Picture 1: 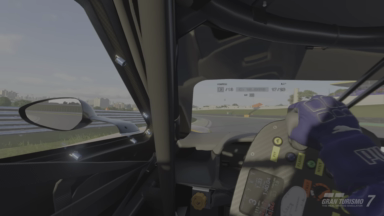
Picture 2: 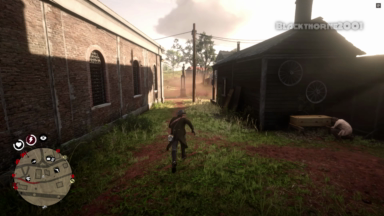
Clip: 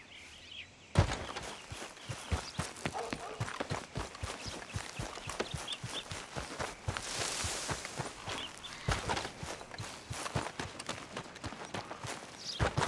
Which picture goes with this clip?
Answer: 2